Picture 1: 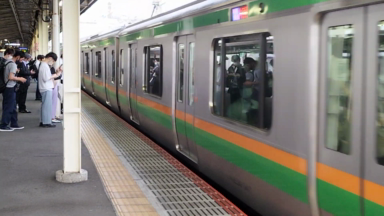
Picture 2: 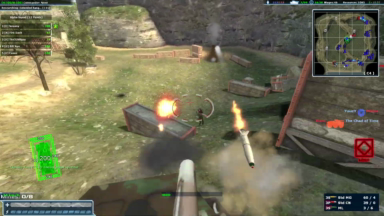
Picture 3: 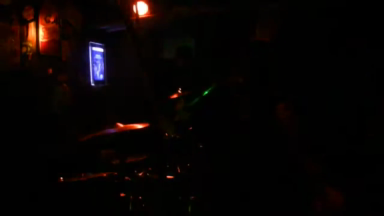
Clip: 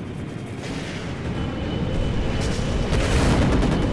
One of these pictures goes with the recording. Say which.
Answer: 2